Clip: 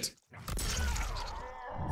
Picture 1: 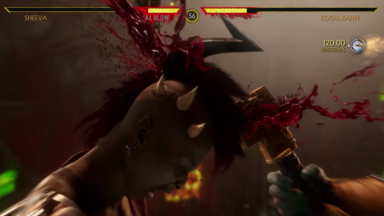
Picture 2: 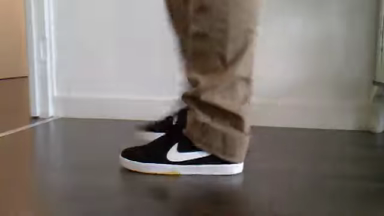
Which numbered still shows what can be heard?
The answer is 1